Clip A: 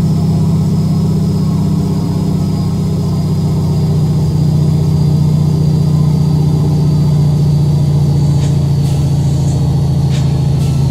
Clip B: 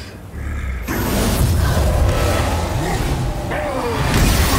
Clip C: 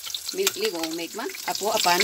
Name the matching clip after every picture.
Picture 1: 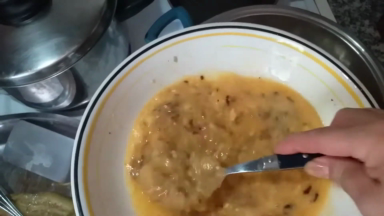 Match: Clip C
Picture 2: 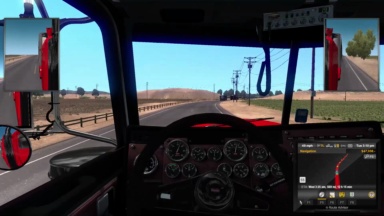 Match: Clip A